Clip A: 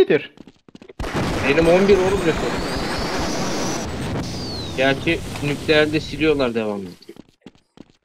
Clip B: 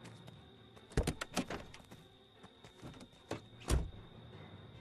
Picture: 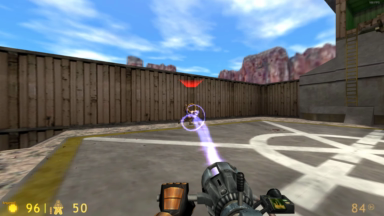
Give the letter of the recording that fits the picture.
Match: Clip A